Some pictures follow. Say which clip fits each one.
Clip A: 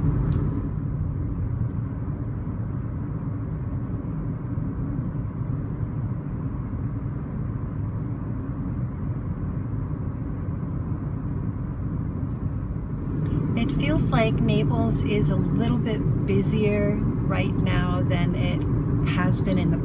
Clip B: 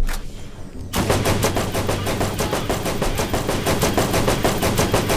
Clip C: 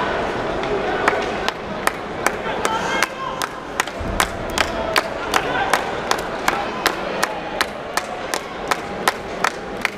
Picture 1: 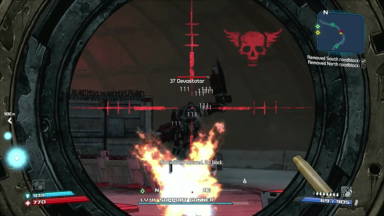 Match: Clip B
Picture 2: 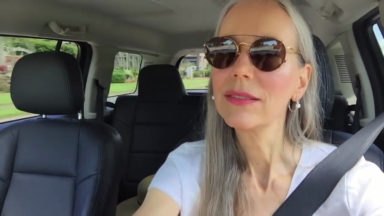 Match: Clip A